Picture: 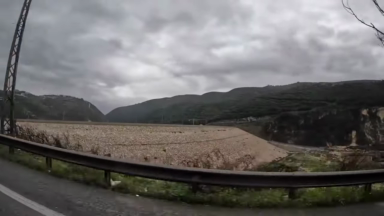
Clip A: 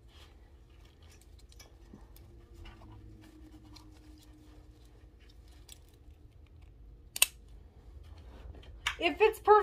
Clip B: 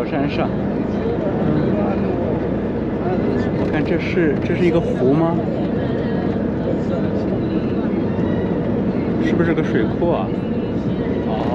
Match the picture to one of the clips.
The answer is B